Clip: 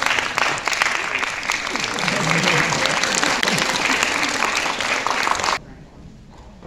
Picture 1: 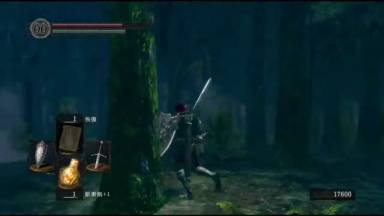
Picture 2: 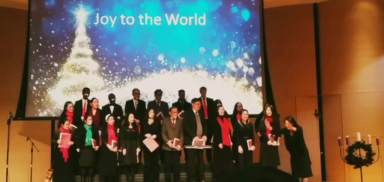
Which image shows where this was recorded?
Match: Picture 2